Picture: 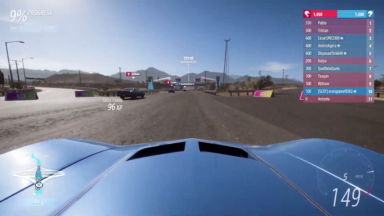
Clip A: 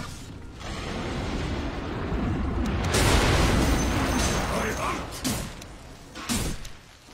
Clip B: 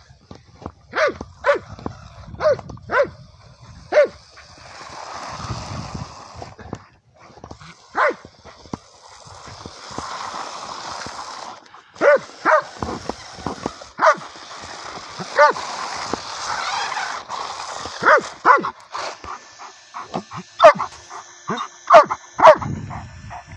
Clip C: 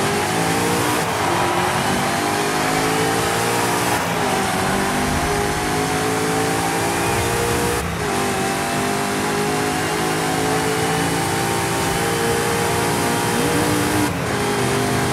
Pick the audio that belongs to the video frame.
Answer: C